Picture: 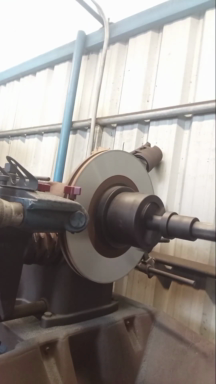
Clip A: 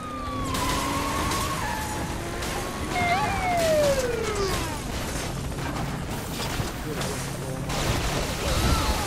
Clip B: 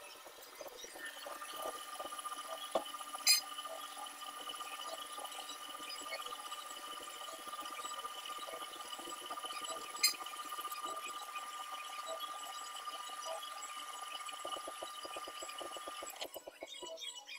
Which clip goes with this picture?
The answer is B